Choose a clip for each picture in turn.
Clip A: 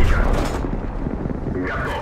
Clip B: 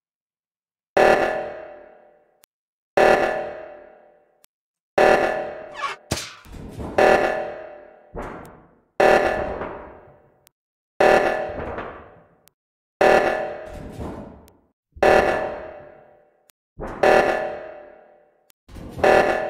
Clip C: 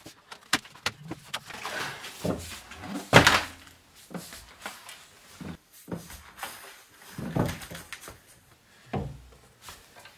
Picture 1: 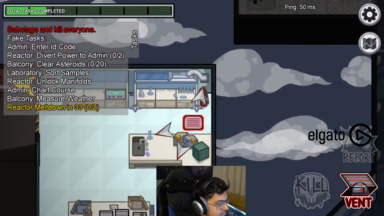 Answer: B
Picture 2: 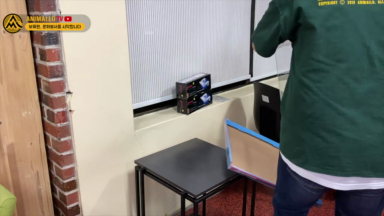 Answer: C